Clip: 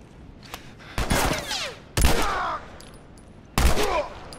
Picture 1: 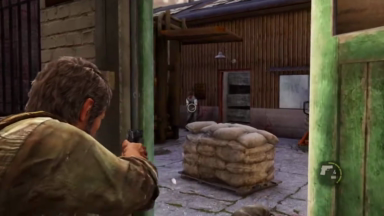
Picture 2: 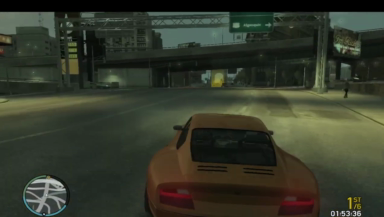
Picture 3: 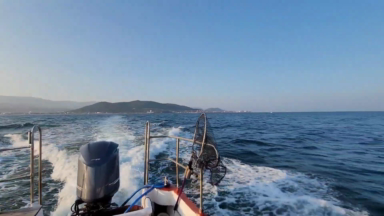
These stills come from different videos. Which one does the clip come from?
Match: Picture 1